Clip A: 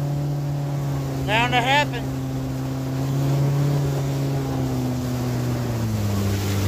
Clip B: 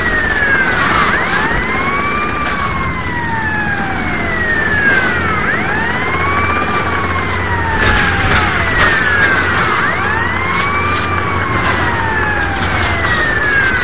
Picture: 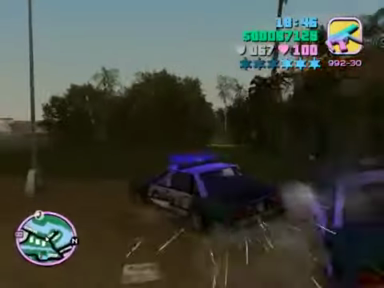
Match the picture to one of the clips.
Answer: B